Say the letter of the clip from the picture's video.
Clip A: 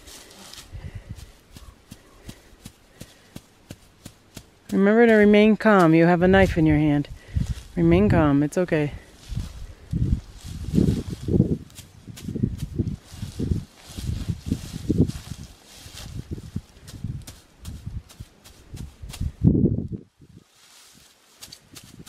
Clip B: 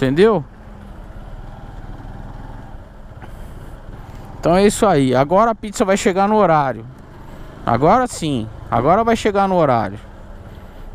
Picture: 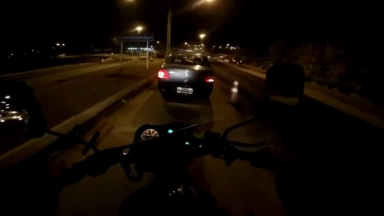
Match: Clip B